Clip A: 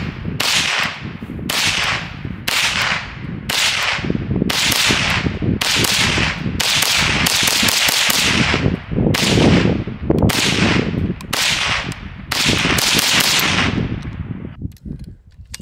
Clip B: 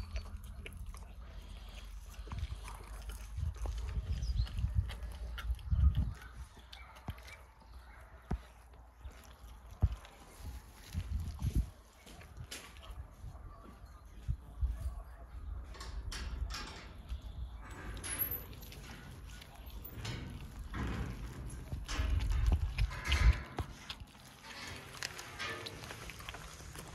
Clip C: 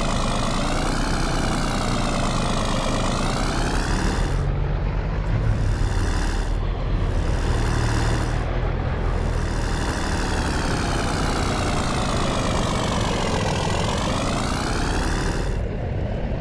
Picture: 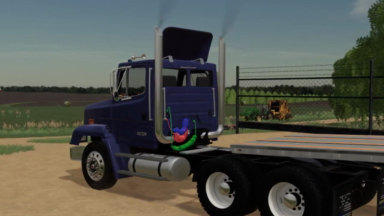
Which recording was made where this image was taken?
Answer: C